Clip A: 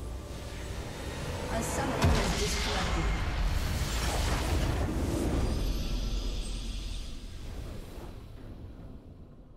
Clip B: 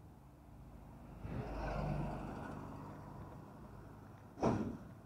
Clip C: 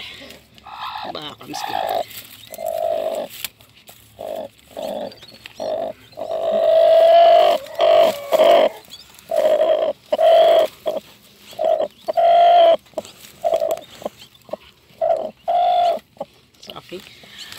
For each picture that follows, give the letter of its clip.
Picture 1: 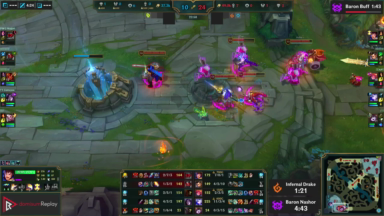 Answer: A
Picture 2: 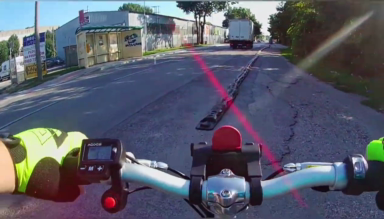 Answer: B